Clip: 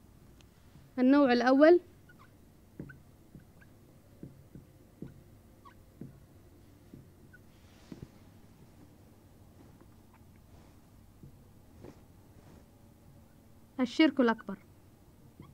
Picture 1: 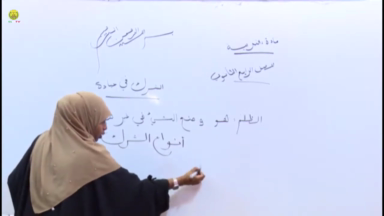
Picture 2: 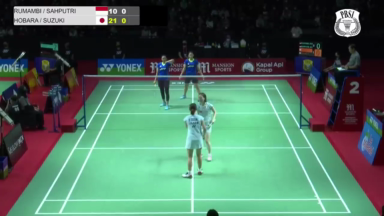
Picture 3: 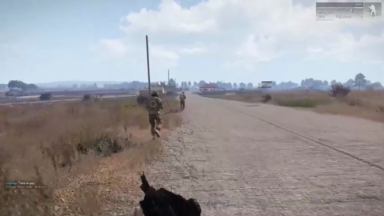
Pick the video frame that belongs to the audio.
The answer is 1